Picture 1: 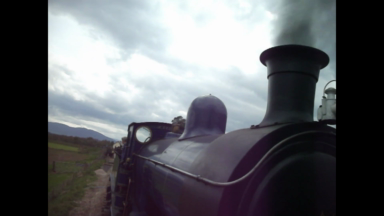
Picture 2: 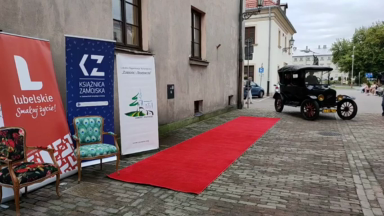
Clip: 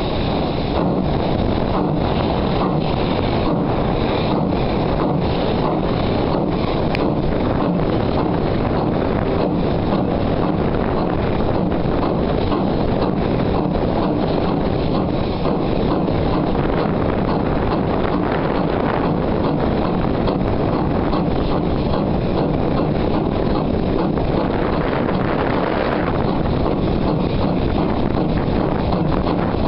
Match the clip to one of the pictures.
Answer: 1